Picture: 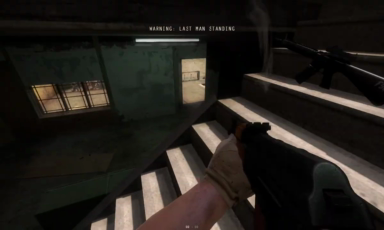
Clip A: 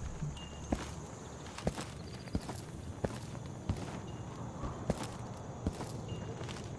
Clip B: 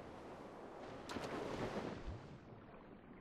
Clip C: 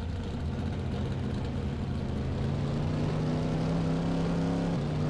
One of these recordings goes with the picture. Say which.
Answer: A